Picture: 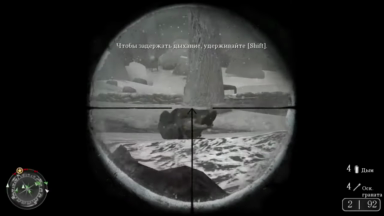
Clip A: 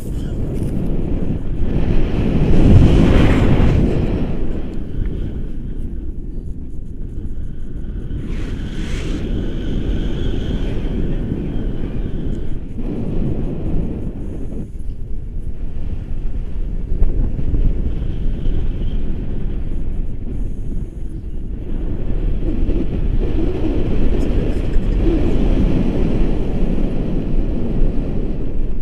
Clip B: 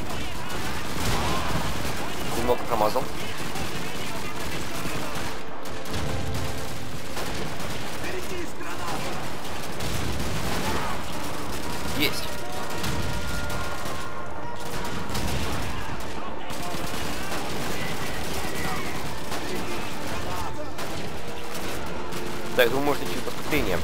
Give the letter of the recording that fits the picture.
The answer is B